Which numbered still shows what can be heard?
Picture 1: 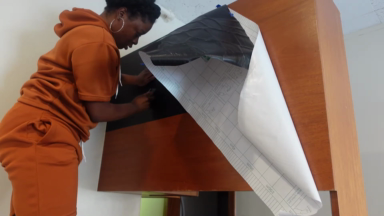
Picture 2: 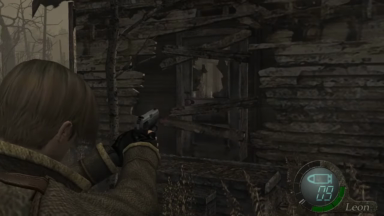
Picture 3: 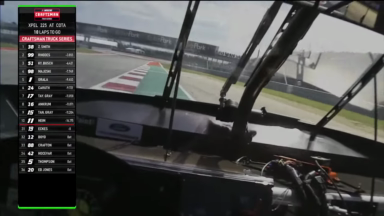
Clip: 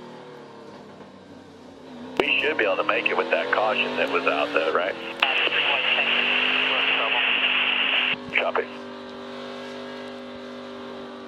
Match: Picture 3